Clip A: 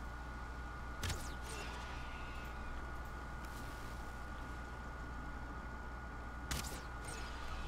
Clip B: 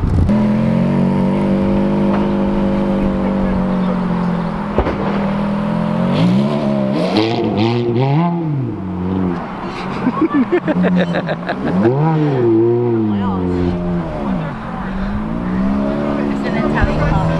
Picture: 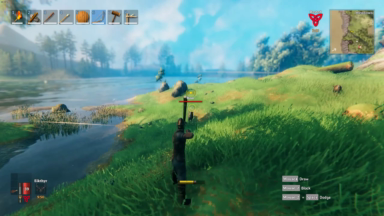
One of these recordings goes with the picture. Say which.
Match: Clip A